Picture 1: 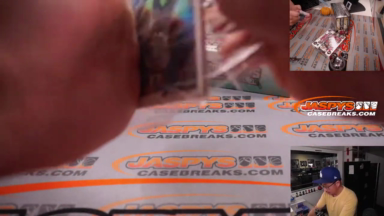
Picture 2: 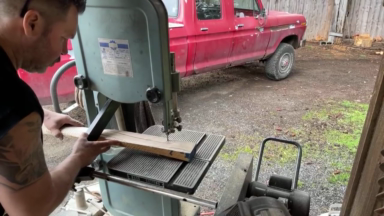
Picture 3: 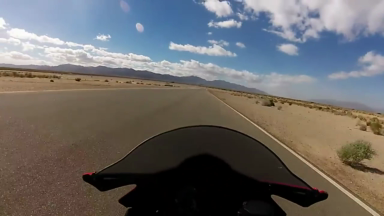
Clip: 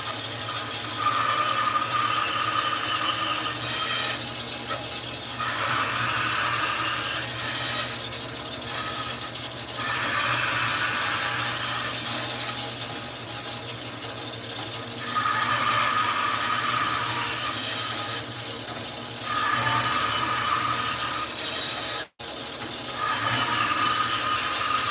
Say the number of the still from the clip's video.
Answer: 2